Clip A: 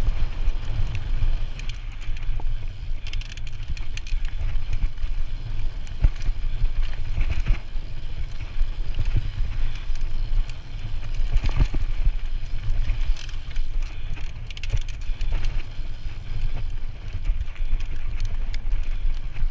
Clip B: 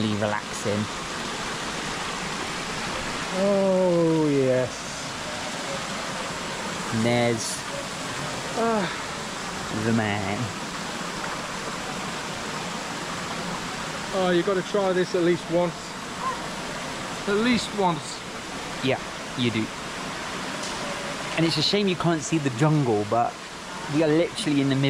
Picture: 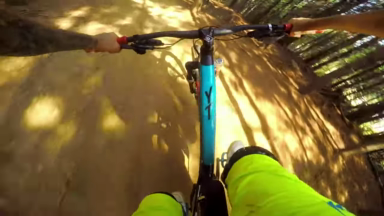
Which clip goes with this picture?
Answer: A